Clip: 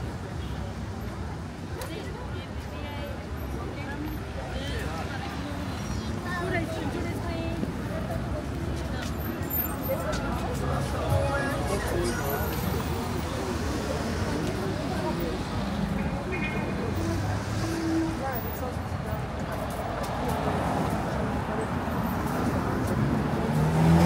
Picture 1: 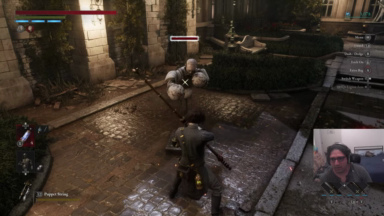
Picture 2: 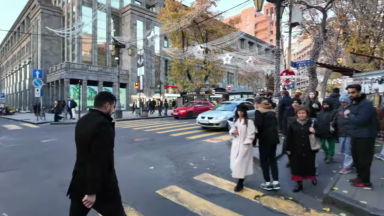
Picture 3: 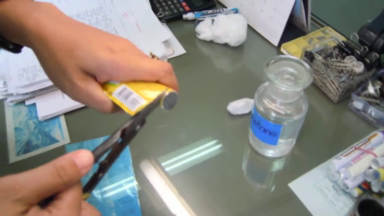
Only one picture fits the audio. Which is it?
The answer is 2